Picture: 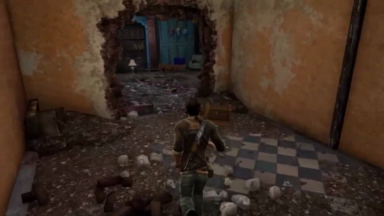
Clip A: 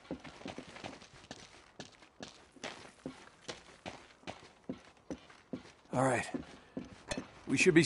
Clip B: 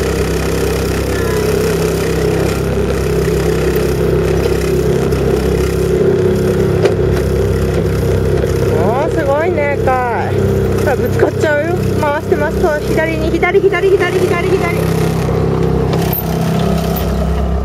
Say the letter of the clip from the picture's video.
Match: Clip A